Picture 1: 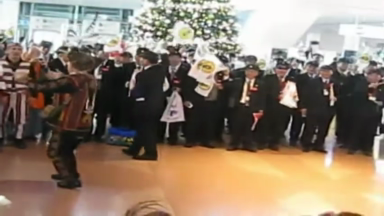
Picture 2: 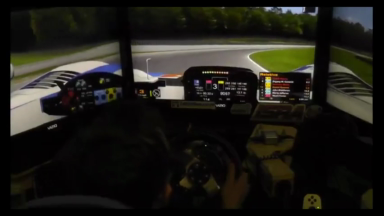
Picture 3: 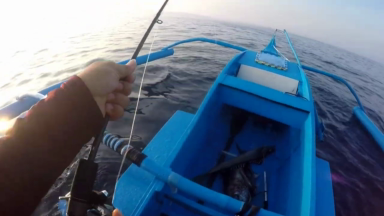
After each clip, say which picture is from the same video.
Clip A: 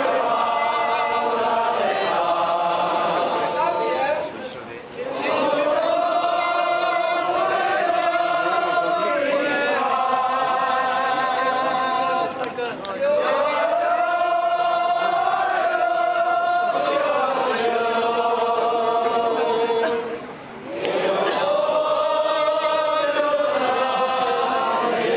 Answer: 1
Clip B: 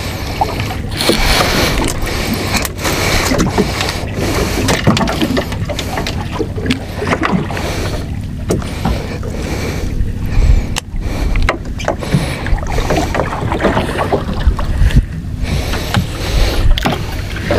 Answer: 3